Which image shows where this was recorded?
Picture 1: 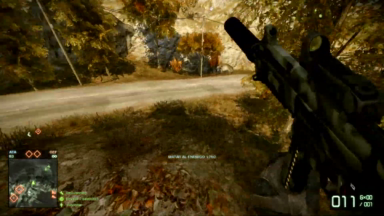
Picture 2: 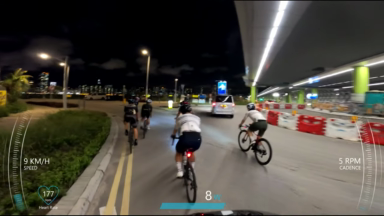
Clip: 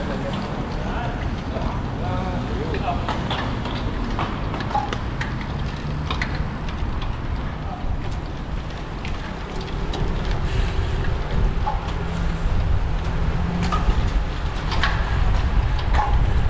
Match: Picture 2